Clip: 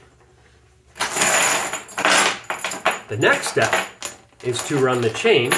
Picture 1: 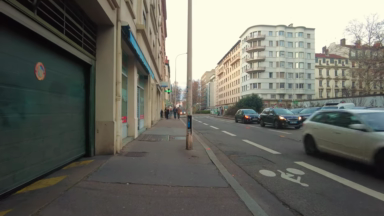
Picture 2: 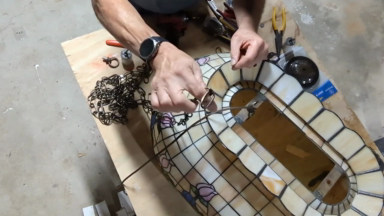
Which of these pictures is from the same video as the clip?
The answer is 2